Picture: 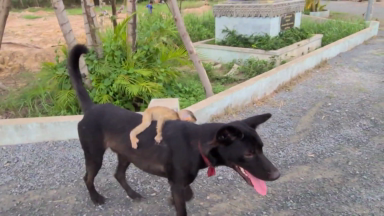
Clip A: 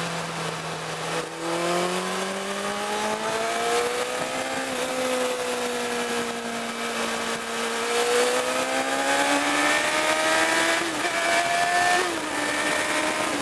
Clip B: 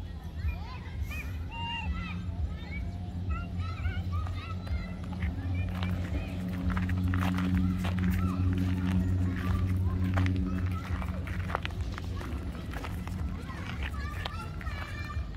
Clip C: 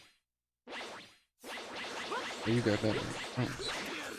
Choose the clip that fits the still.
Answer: B